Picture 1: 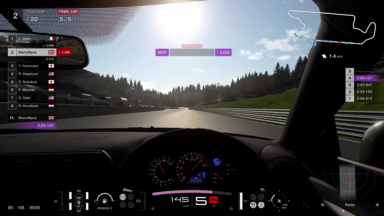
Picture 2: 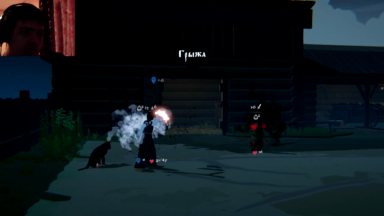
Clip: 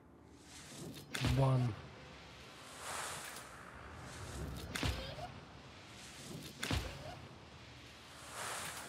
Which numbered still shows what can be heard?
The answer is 2